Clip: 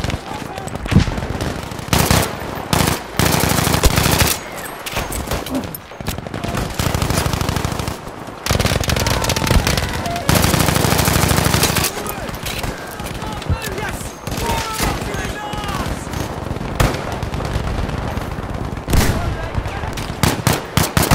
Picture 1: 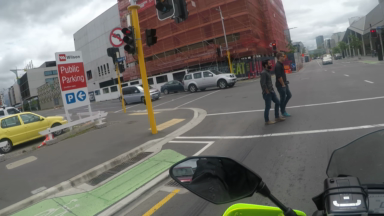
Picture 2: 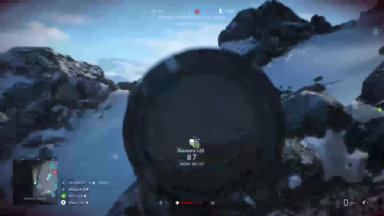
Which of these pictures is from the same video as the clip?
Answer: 2